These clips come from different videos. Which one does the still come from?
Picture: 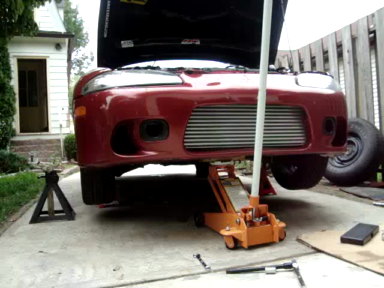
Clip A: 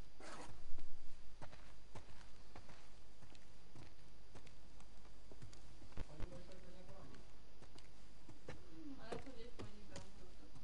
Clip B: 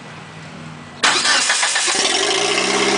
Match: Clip B